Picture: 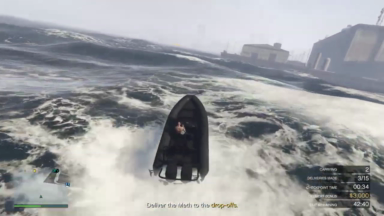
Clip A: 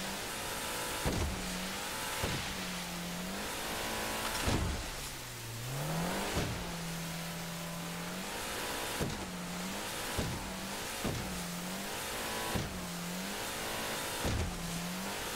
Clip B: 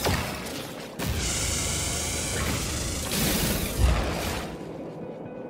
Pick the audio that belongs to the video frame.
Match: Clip A